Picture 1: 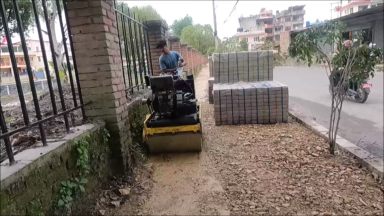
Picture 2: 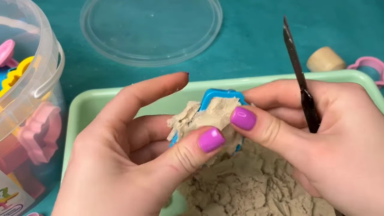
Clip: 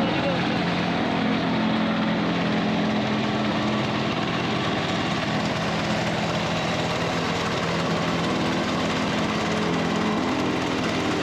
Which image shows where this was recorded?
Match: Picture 1